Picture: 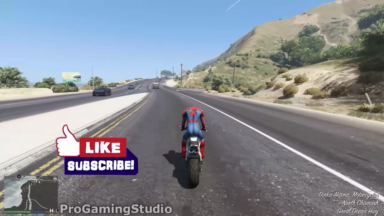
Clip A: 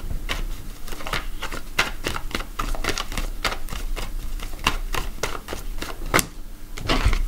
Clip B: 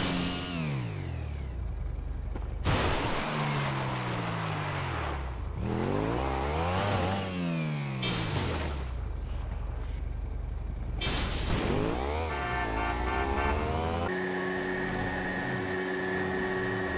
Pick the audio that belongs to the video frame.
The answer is B